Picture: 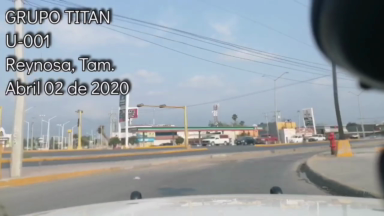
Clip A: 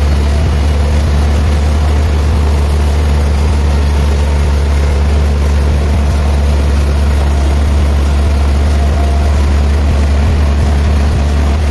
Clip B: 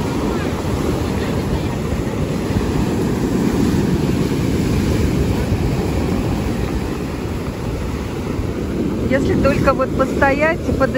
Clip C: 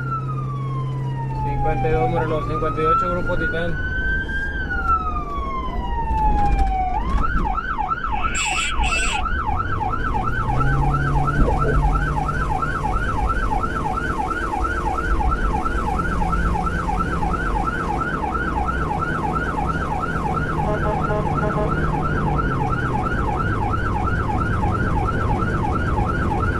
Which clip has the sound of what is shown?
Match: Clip C